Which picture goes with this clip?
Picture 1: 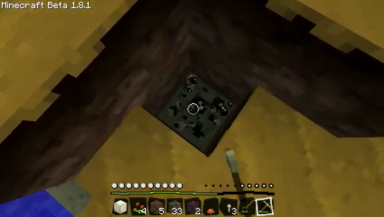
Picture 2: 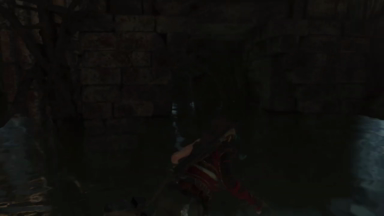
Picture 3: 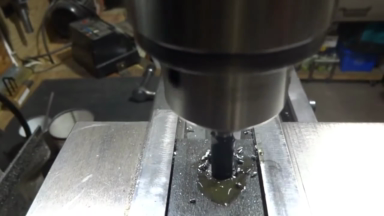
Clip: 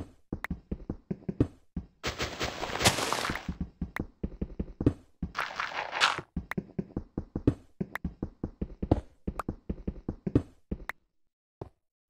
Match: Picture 1